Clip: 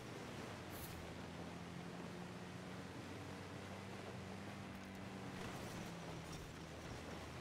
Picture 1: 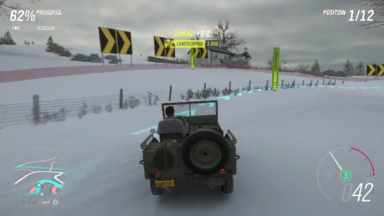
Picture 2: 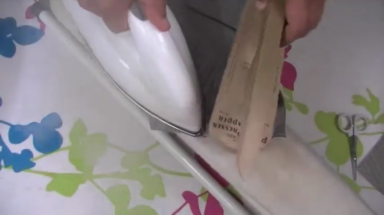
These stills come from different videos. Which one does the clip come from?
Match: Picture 1